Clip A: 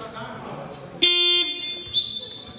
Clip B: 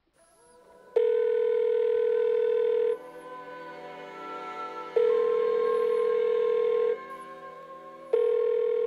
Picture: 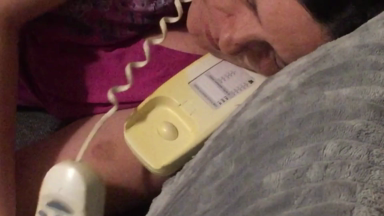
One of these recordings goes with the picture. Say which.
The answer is B